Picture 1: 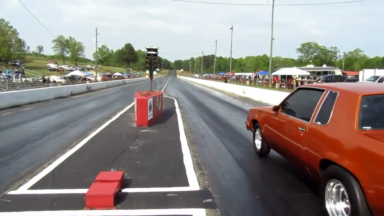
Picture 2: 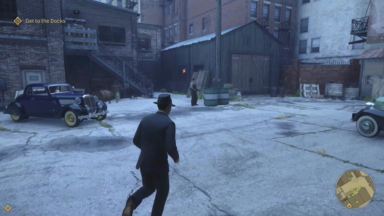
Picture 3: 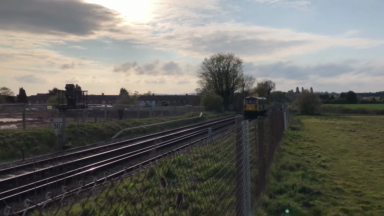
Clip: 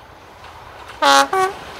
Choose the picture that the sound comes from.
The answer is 3